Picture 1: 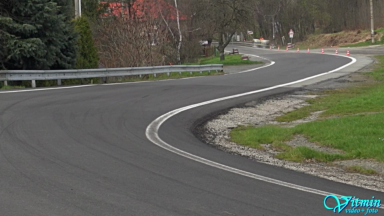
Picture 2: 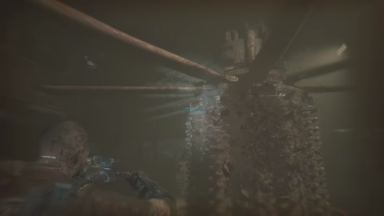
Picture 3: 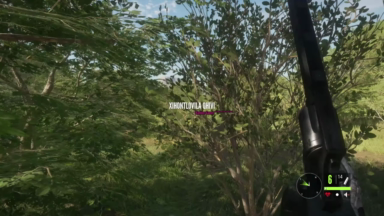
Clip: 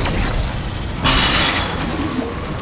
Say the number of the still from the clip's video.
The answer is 2